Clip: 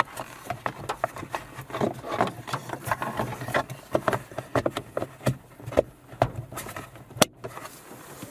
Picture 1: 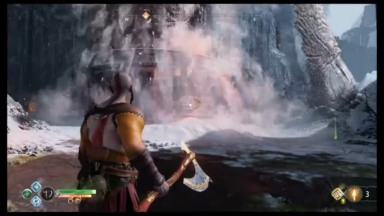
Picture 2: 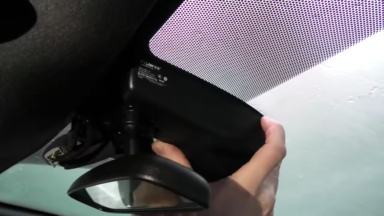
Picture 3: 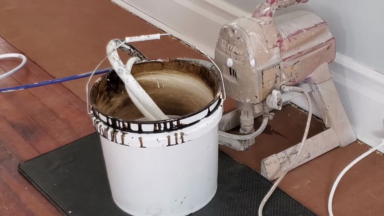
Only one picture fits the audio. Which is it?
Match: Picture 2